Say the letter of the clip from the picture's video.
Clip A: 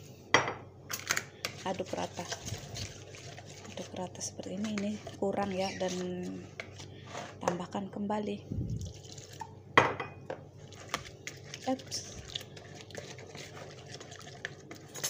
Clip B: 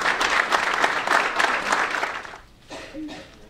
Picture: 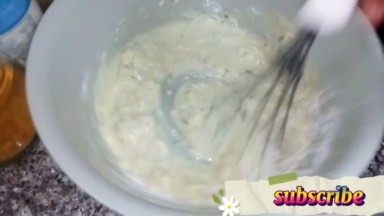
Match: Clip A